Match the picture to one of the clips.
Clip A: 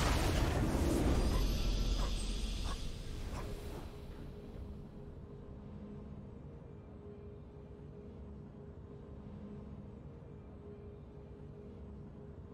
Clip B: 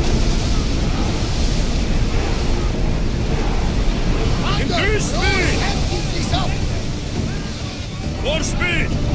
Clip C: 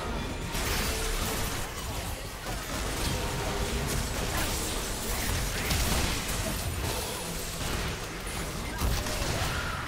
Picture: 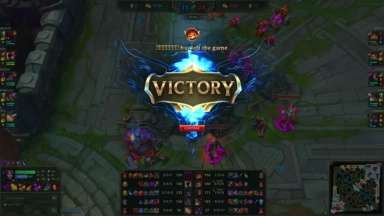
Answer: A